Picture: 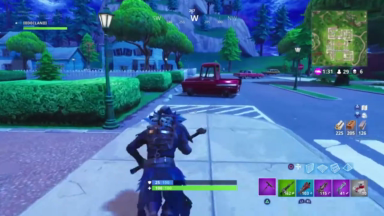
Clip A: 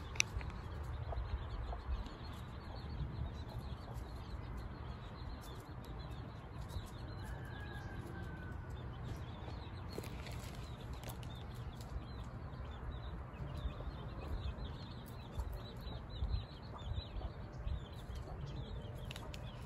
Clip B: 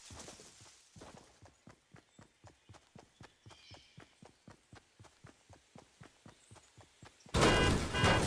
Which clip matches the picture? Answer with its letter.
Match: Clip B